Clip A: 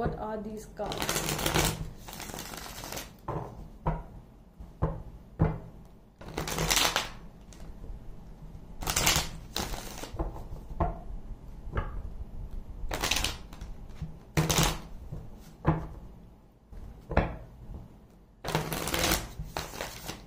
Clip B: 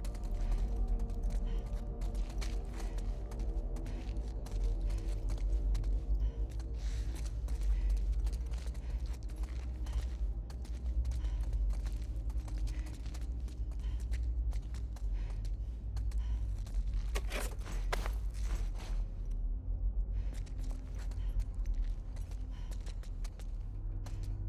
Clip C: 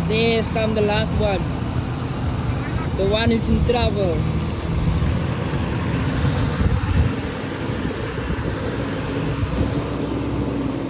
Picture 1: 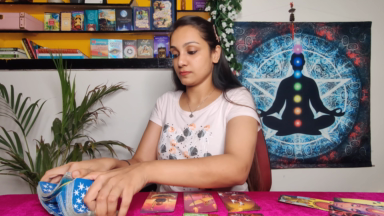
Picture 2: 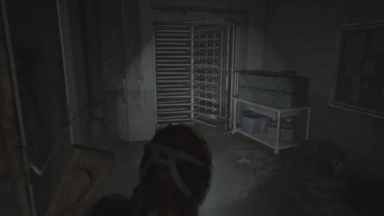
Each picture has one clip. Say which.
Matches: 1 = A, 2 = B